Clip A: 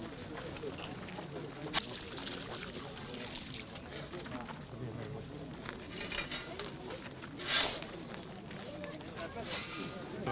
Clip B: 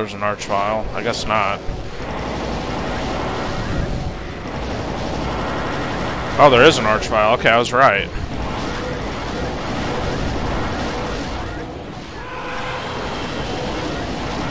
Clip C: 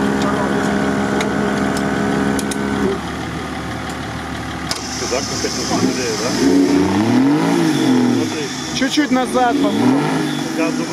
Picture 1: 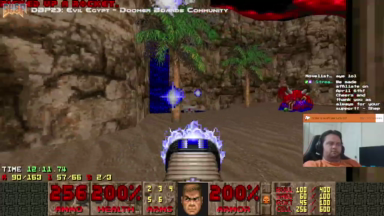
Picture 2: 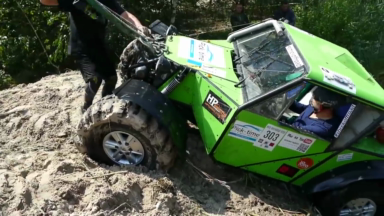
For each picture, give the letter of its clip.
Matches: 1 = B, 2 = C